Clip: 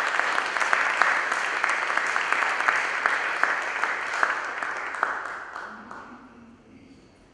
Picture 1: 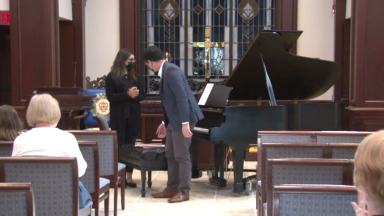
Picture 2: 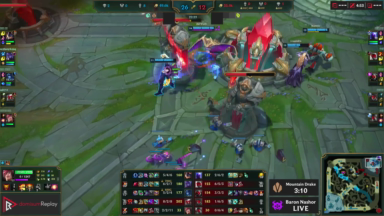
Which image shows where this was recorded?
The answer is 1